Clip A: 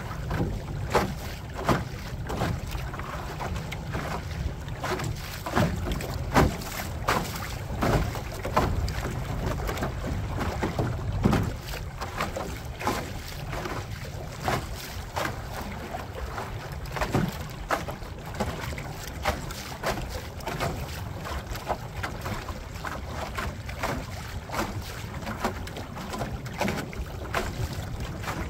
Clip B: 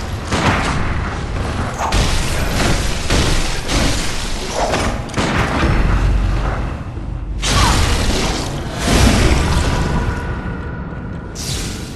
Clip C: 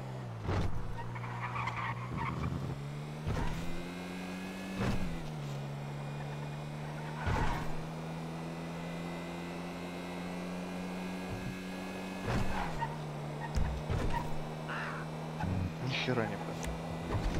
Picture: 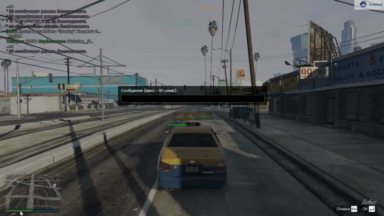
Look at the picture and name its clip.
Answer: C